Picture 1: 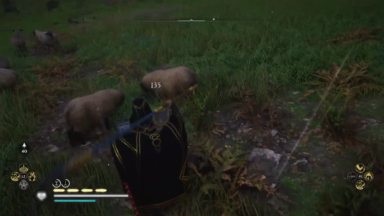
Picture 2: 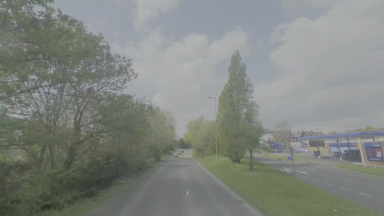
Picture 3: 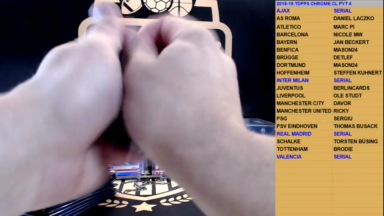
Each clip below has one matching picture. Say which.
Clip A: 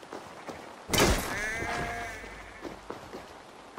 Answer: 1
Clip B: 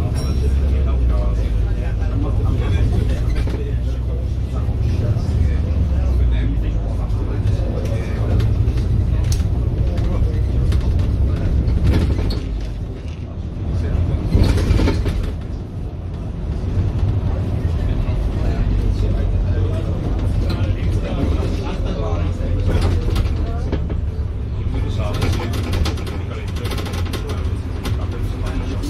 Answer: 2